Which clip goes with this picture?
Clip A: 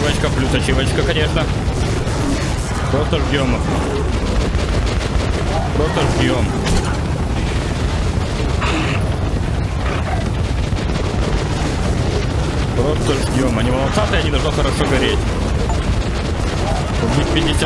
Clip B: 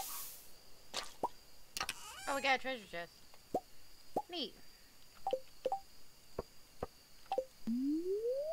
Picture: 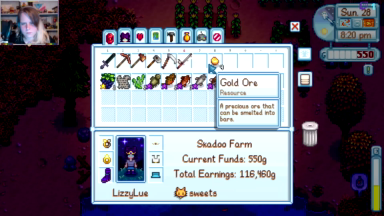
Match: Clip B